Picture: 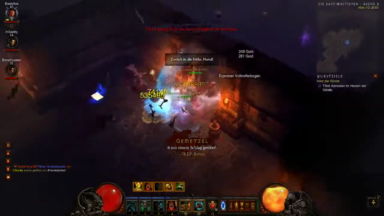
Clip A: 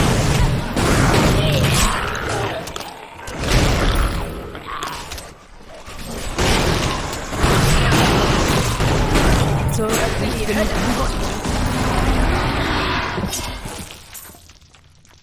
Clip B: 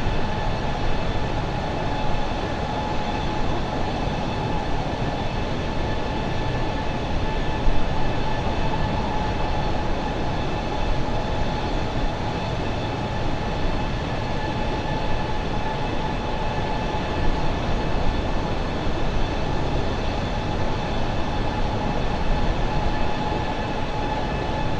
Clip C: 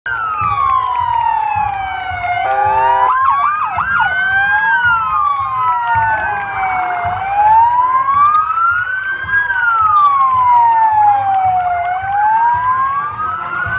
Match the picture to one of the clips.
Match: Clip A